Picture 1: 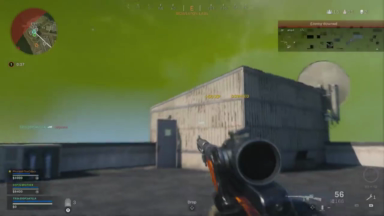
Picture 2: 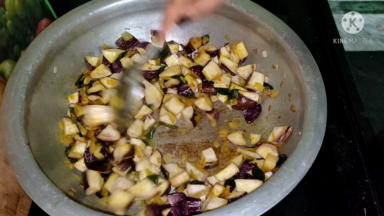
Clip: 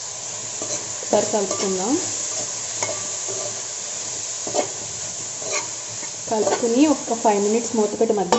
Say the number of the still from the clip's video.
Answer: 2